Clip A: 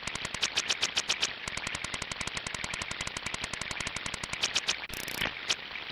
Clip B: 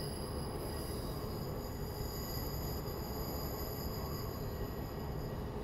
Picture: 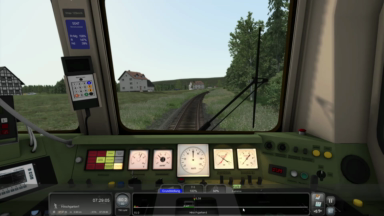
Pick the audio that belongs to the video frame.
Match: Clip B